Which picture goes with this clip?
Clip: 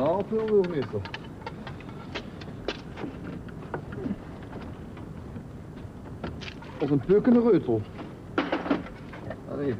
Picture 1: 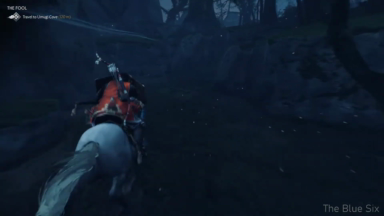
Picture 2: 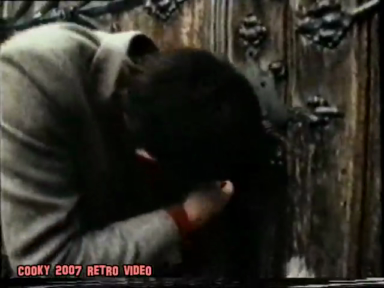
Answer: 2